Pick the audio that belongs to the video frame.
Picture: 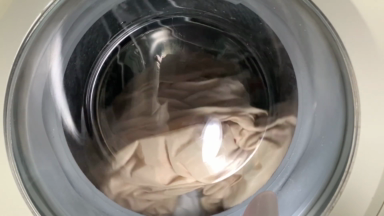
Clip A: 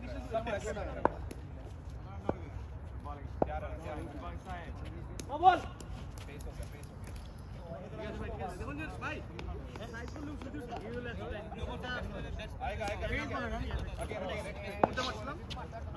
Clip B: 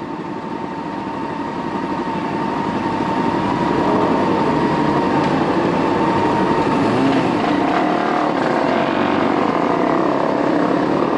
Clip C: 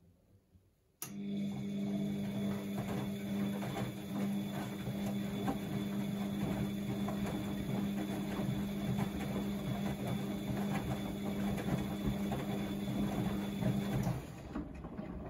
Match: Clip C